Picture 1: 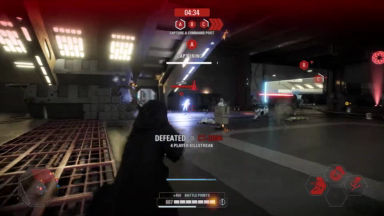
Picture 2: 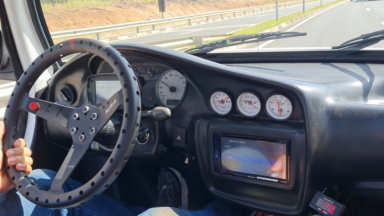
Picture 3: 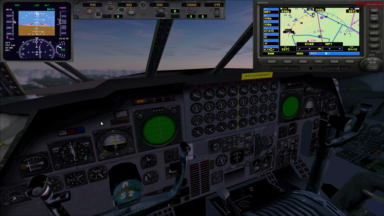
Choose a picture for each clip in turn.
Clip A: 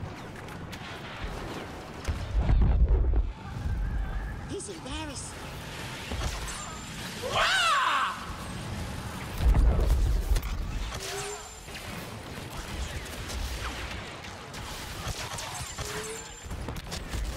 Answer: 1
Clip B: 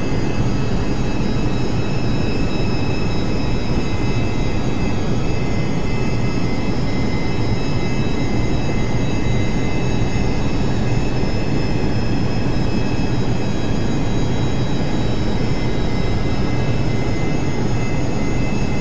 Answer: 3